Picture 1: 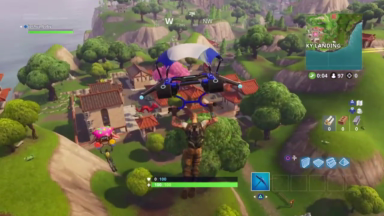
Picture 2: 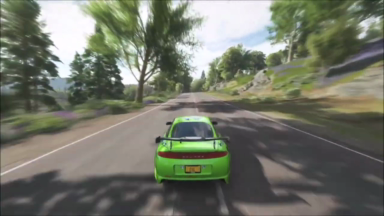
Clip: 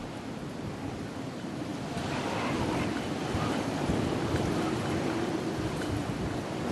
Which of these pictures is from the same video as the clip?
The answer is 1